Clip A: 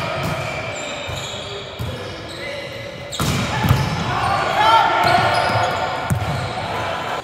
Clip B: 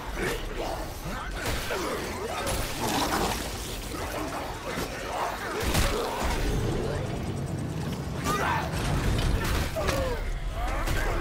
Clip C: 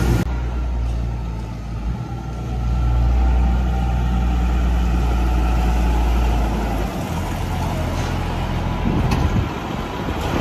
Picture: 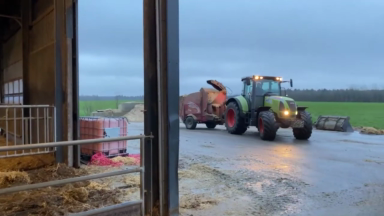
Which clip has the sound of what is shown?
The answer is C